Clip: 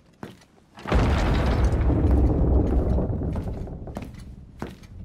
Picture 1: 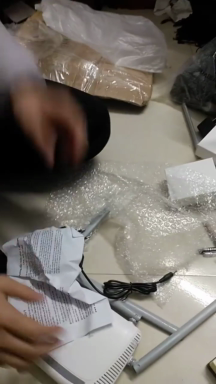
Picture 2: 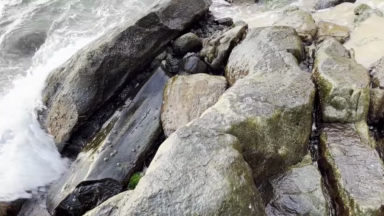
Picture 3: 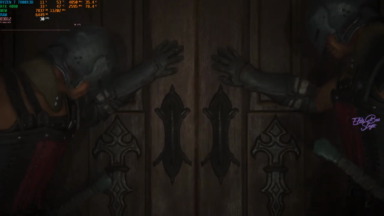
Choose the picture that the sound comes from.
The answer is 3